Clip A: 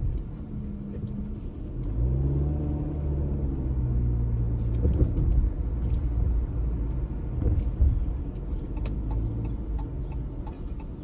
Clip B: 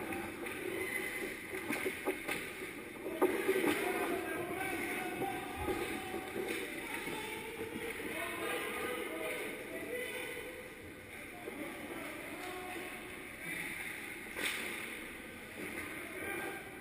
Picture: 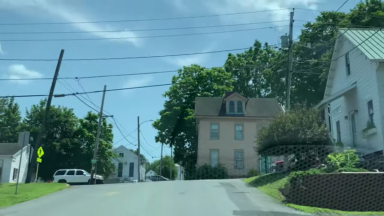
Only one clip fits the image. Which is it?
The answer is A